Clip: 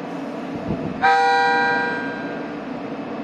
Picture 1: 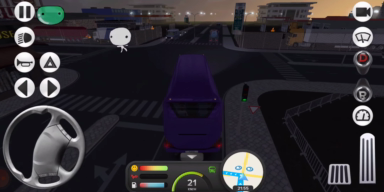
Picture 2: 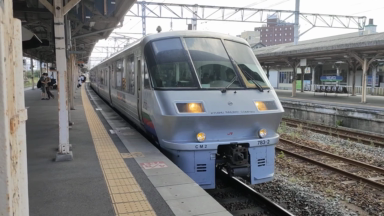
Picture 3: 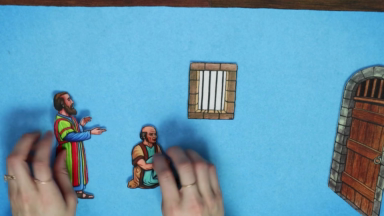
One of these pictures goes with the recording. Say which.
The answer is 2